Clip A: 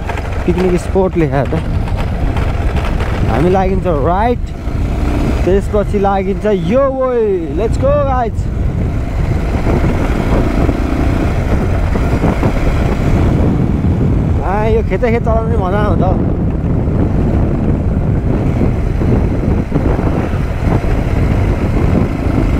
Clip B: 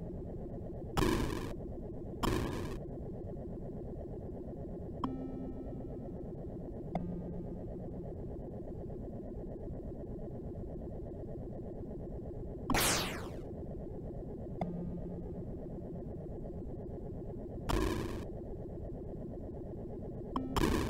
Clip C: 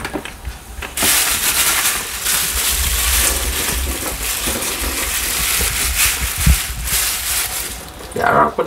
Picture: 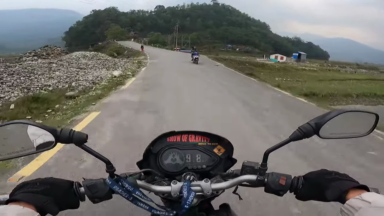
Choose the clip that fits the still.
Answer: A